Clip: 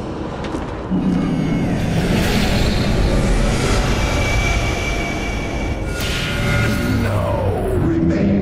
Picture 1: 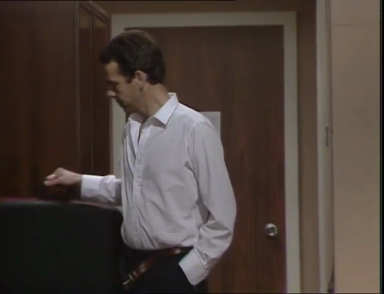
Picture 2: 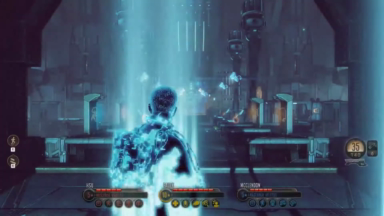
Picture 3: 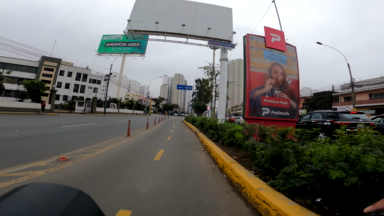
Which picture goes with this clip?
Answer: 2